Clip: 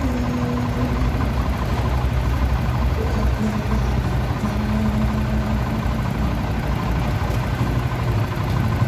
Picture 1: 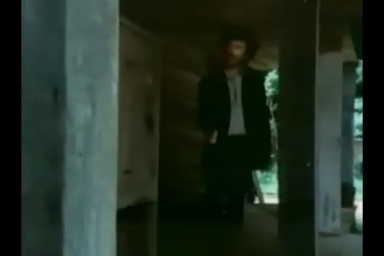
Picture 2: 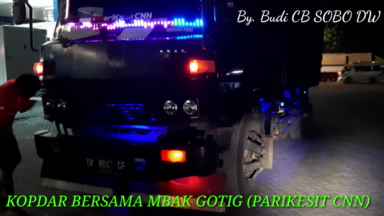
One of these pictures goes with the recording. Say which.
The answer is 2